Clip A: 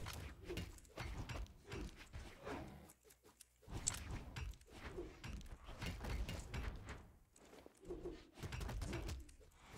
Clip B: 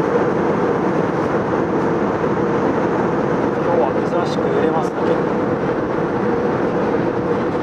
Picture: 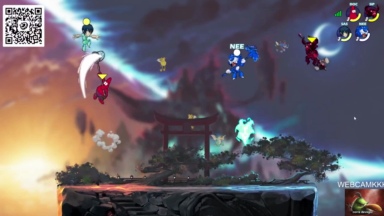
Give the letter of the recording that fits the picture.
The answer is A